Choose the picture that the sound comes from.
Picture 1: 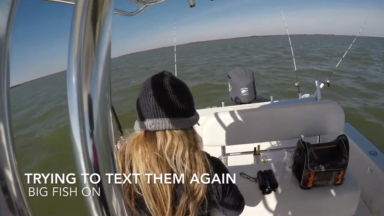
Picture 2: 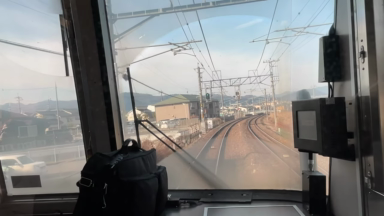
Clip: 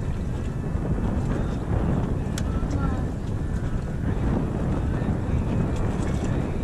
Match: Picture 1